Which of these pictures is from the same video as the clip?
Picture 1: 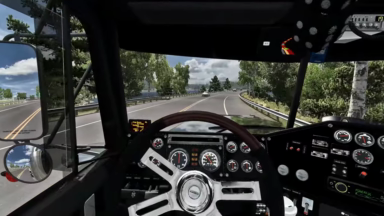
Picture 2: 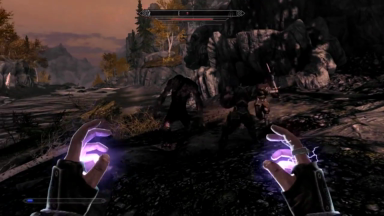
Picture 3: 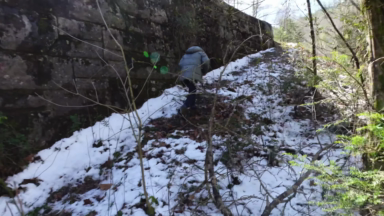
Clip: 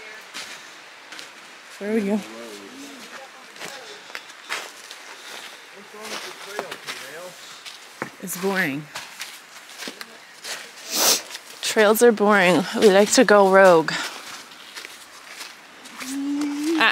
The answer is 3